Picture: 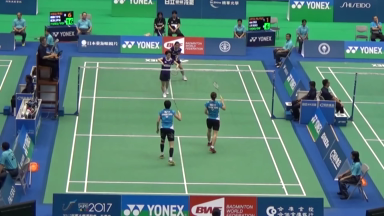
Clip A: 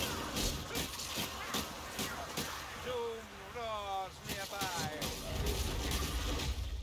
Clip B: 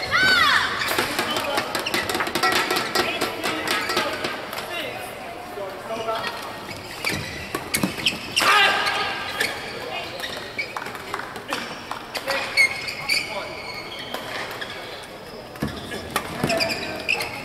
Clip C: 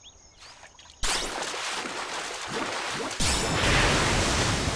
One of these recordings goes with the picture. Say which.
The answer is B